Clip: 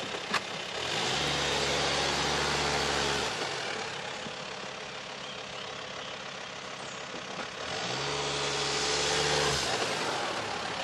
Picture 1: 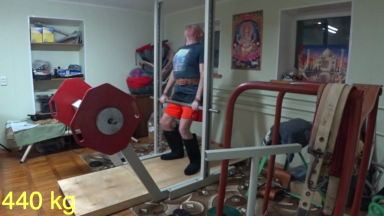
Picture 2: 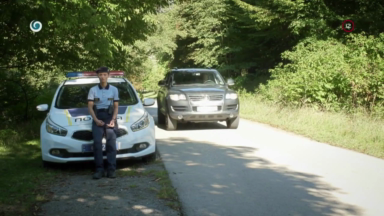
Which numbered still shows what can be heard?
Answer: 2